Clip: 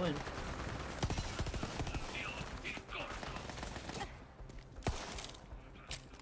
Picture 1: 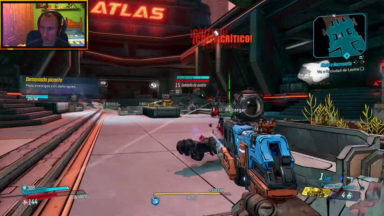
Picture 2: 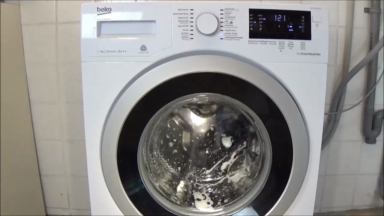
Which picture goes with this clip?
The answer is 1